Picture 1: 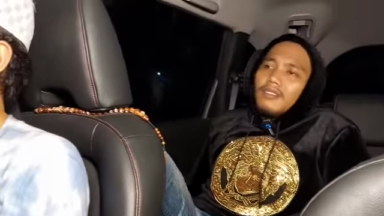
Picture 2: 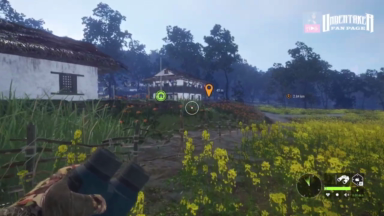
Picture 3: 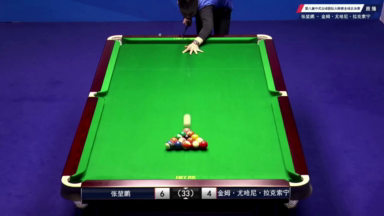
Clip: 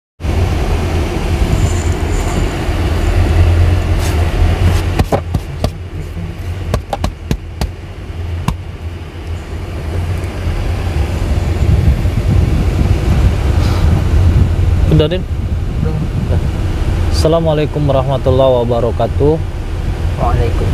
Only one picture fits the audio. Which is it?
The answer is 1